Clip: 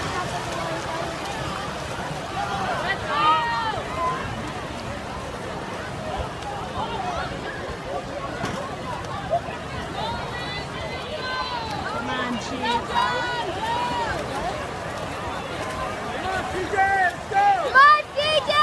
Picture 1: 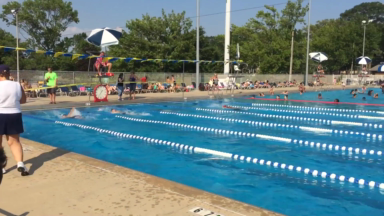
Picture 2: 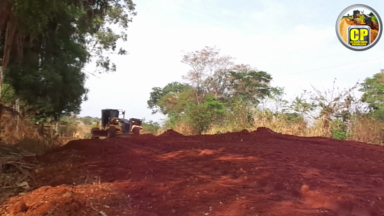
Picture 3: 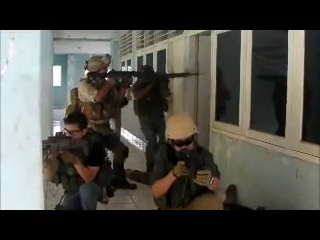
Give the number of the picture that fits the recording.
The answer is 1